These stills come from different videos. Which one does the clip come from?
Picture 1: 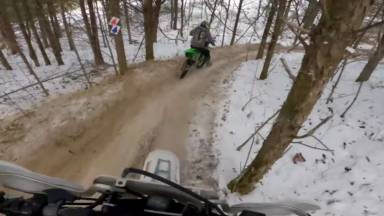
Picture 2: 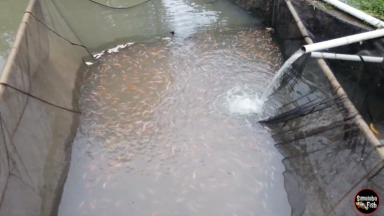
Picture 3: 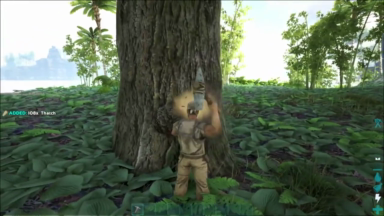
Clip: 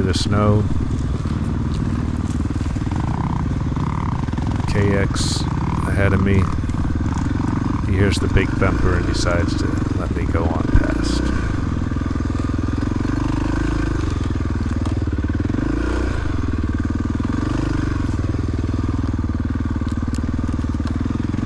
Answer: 1